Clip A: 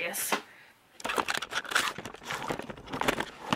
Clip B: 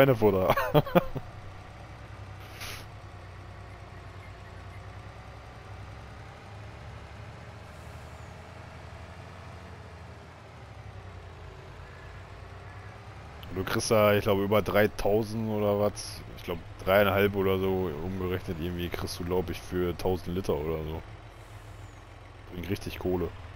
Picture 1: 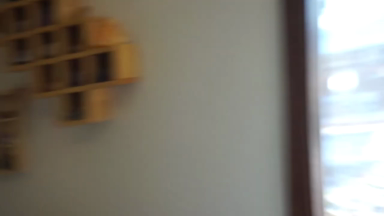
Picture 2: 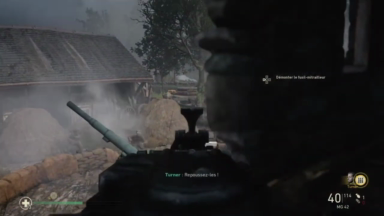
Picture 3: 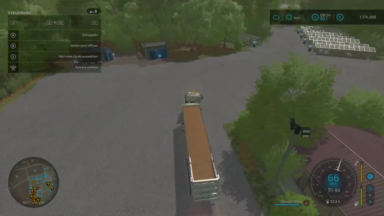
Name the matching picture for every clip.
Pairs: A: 1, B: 3